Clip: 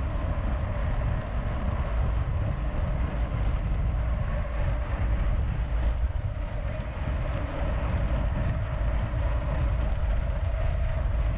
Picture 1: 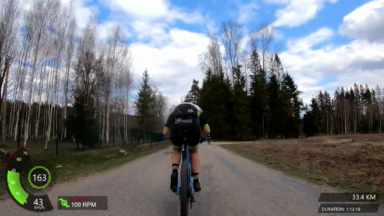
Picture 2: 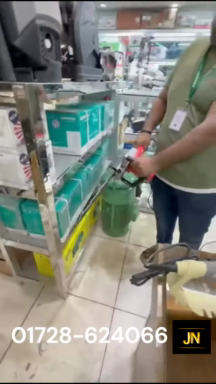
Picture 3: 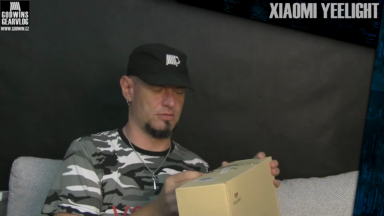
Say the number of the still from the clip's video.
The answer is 1